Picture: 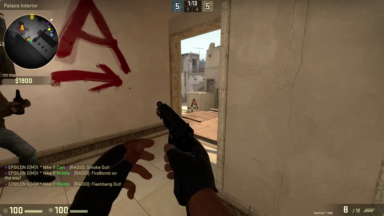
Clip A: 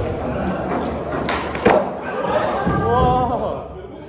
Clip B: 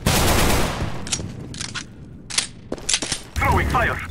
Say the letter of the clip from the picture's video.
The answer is B